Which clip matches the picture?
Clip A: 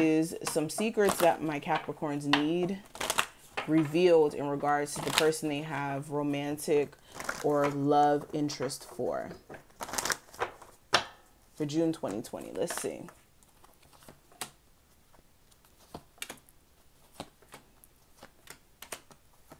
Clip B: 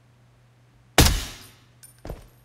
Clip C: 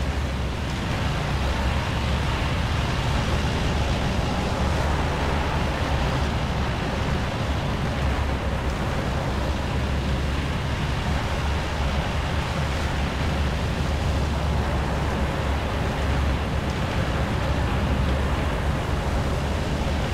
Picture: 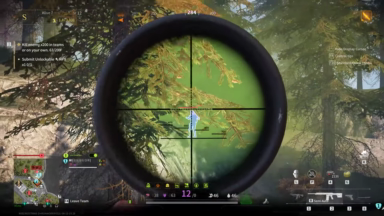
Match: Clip B